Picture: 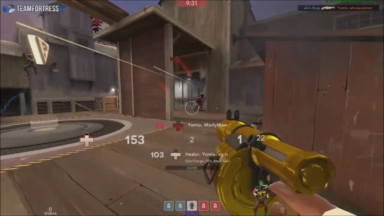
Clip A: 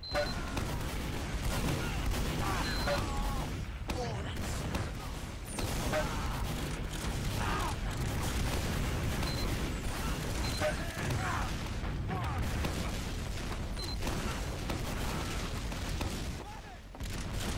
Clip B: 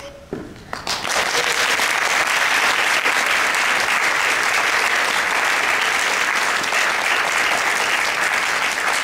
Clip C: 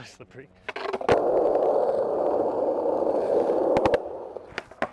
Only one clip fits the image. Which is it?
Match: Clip A